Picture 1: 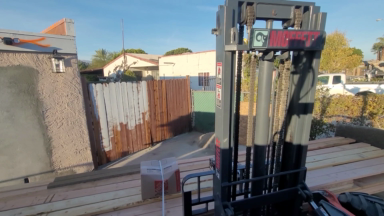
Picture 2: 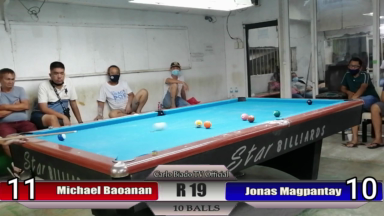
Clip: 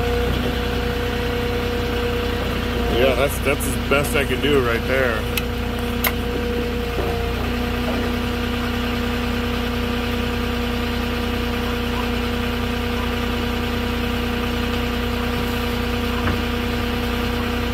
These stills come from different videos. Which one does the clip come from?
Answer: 1